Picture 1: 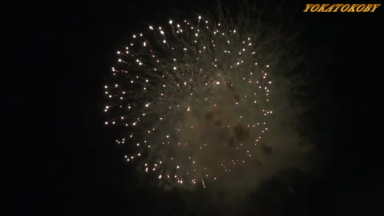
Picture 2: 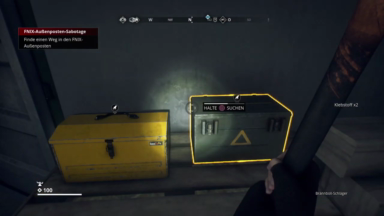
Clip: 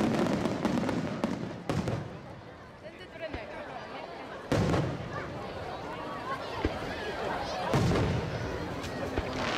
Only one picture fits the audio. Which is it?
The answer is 1